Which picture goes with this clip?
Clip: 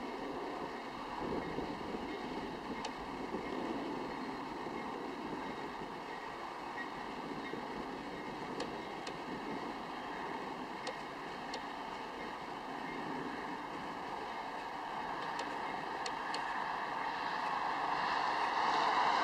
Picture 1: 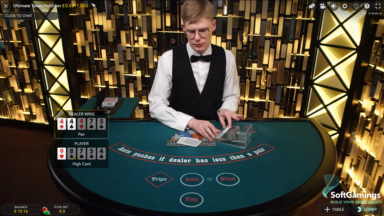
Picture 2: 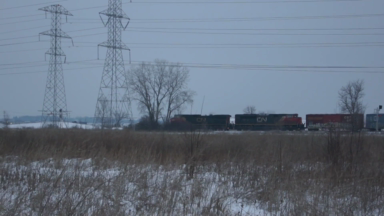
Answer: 2